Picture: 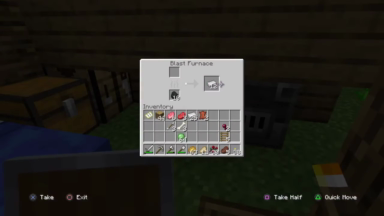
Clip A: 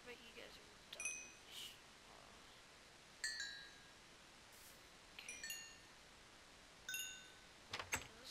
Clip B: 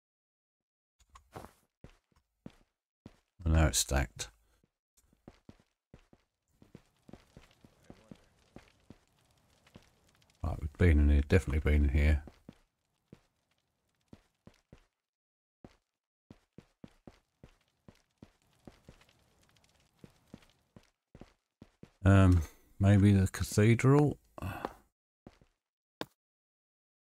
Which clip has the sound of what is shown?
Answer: A